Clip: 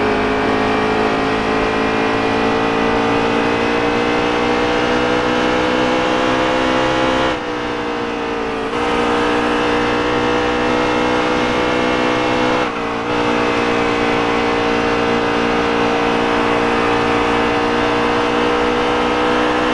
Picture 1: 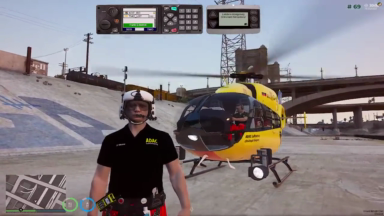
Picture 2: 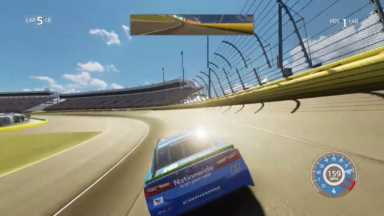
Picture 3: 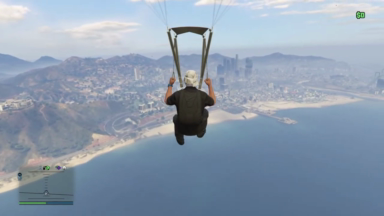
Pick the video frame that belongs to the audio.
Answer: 2